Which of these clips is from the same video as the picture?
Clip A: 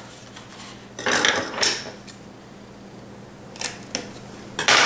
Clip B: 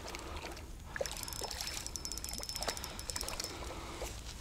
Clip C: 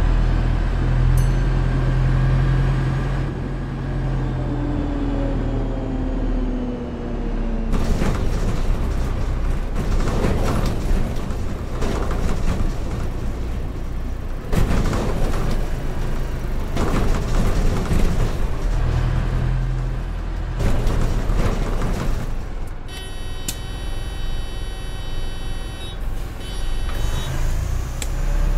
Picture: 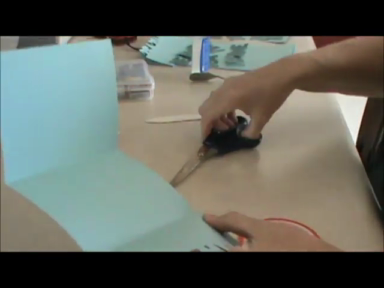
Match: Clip A